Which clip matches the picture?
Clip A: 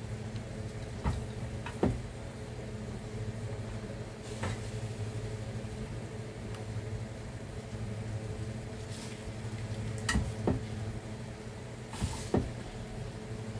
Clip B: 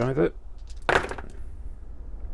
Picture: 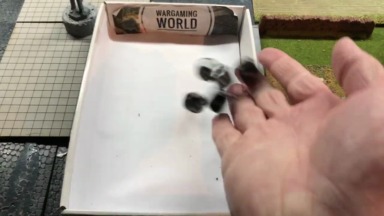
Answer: B